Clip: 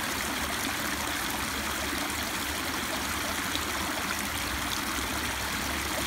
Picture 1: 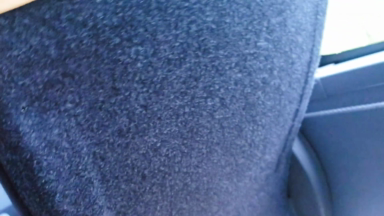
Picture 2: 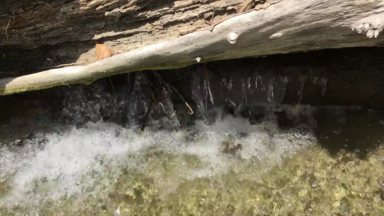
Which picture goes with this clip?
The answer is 2